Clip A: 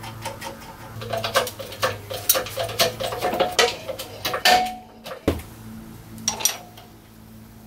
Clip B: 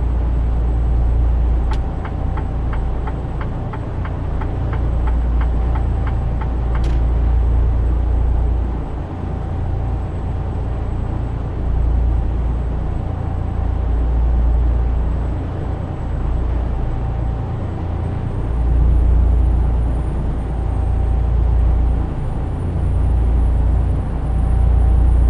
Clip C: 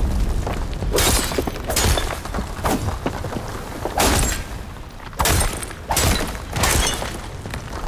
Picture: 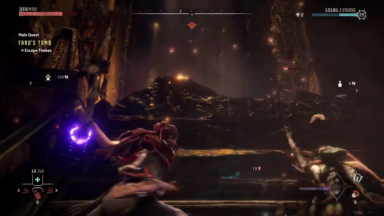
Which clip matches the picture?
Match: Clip C